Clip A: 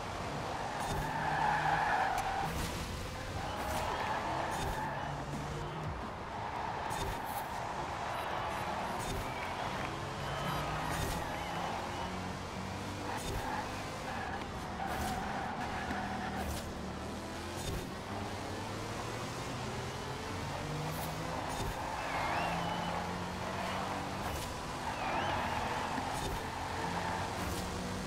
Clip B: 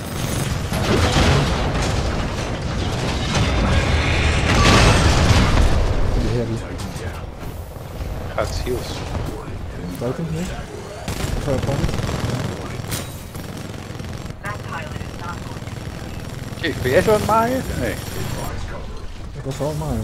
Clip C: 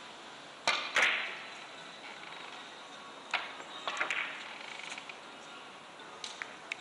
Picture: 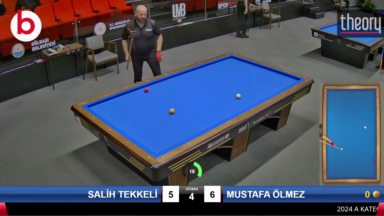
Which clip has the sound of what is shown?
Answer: C